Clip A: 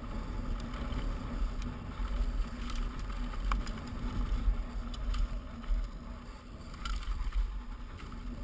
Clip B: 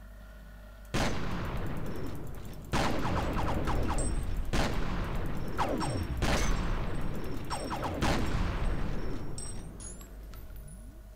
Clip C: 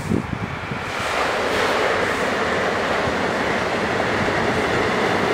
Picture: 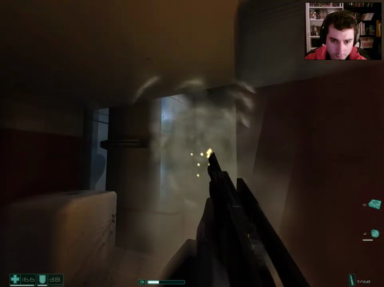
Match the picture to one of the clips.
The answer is B